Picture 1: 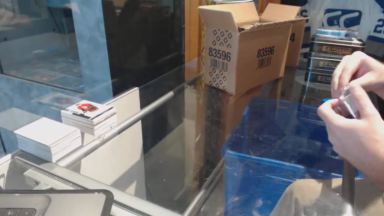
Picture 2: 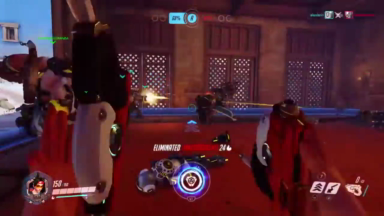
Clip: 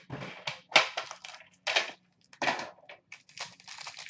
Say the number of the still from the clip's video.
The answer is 1